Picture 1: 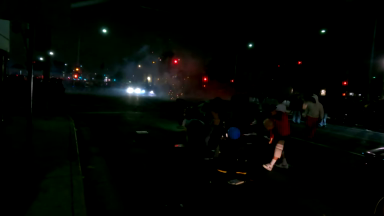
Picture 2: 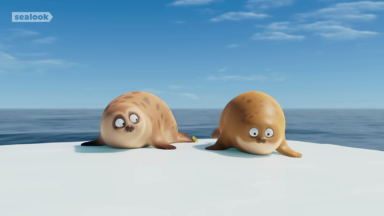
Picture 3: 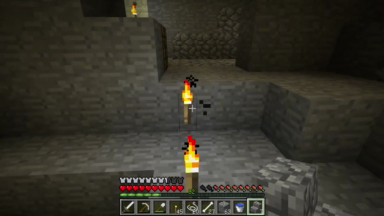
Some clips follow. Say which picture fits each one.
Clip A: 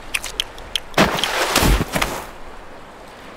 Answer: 2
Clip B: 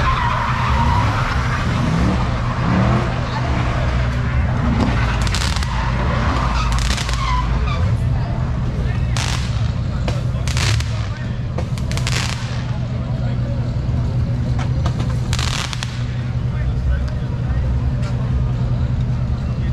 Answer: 1